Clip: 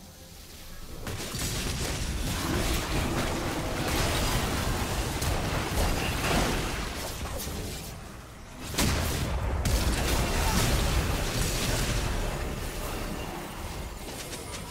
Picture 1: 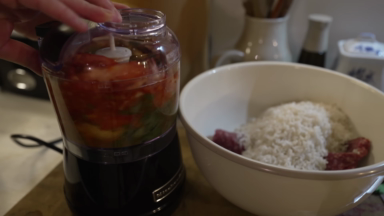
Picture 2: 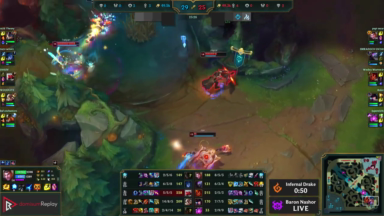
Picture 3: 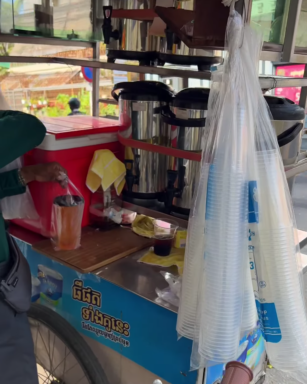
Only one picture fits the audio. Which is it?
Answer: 2